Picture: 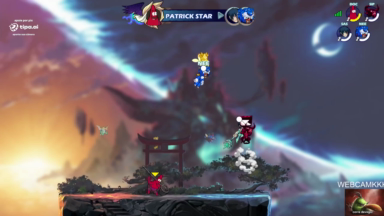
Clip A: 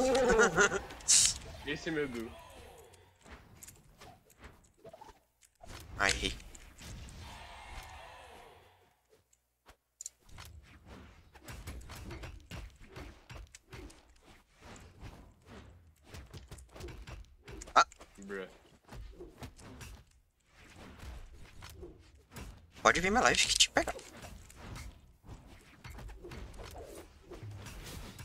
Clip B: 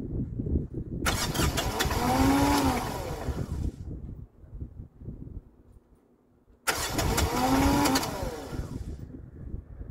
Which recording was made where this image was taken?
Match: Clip A